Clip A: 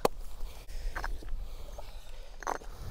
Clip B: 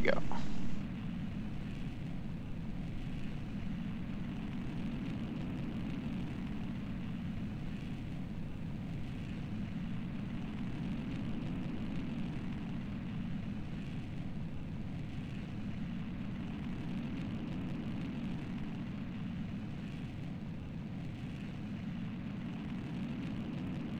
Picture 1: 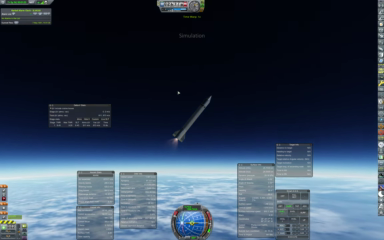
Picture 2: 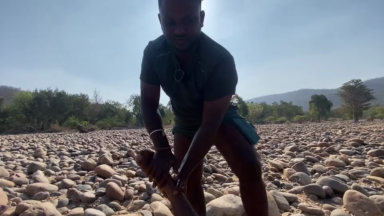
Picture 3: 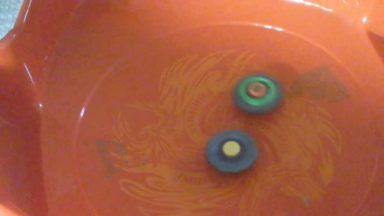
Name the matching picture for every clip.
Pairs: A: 2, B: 1